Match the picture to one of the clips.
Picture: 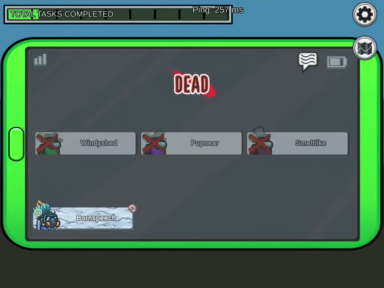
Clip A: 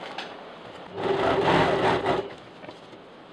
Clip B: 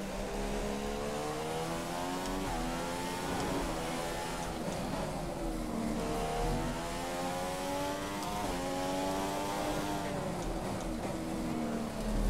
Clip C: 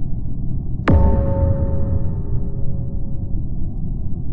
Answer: C